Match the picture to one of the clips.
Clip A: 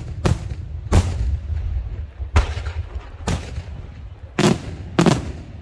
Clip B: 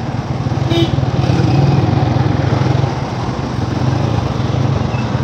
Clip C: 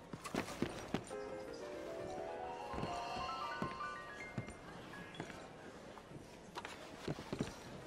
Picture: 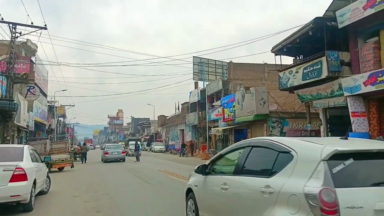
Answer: B